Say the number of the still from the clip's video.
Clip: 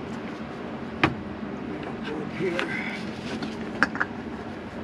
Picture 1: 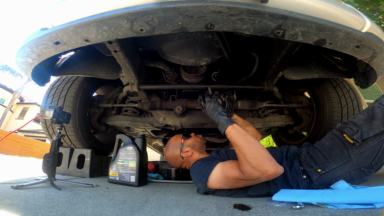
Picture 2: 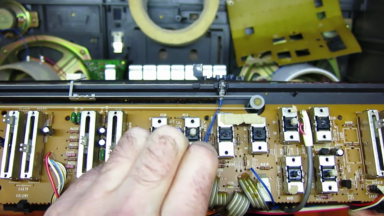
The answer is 1